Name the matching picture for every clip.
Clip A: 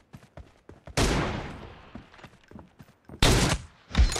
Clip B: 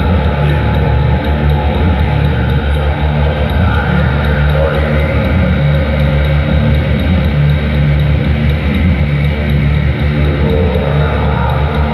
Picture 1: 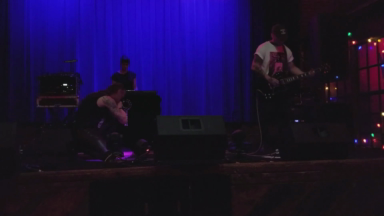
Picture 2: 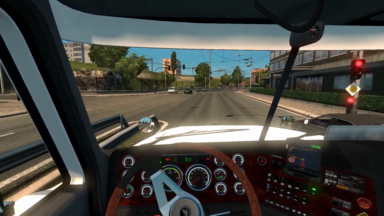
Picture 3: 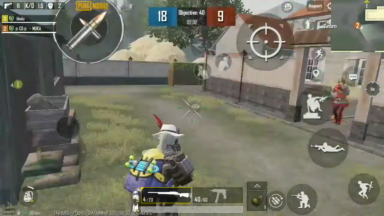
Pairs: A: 3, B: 1